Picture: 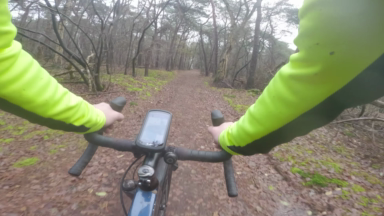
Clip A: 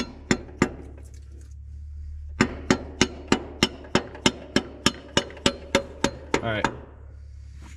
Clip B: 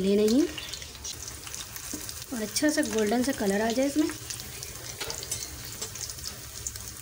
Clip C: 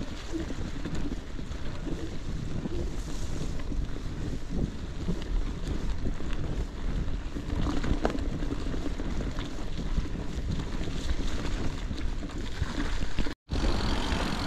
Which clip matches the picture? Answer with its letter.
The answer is C